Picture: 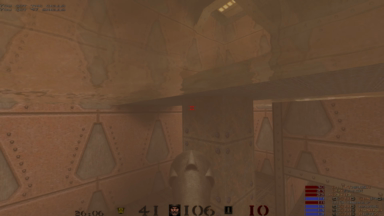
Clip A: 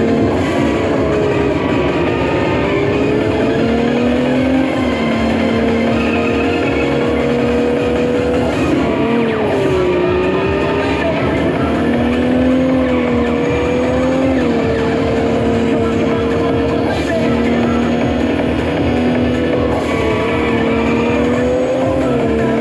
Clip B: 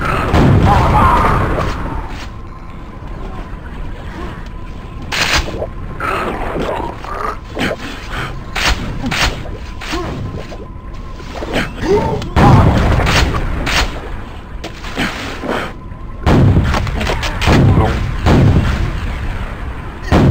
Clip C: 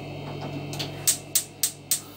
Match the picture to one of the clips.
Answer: B